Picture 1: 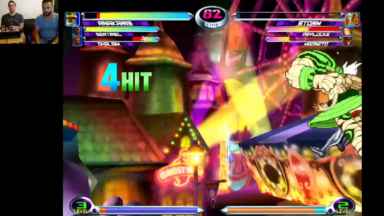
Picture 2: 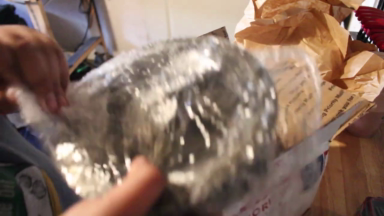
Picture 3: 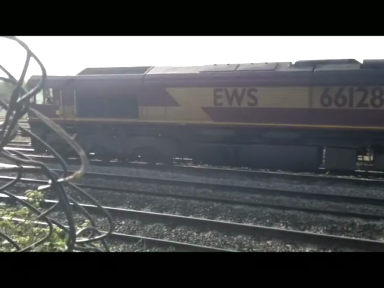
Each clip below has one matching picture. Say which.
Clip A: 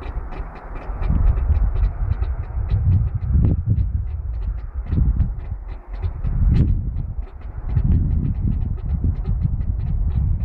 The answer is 3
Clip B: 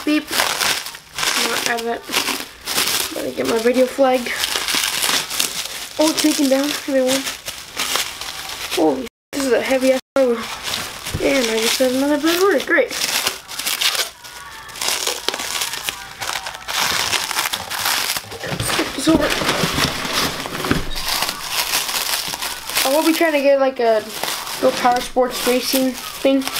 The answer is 2